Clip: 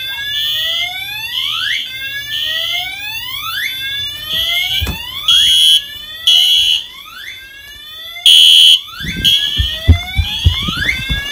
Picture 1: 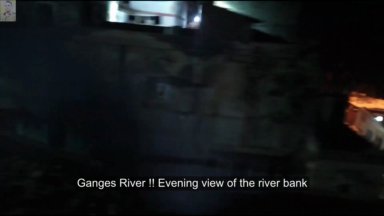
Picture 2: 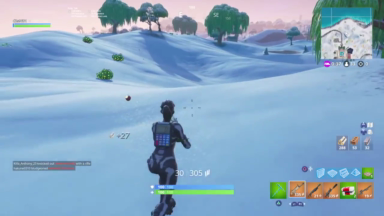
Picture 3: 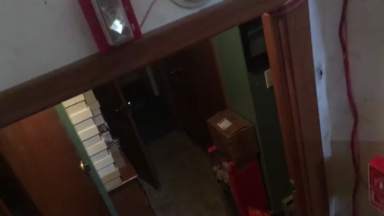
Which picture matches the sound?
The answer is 3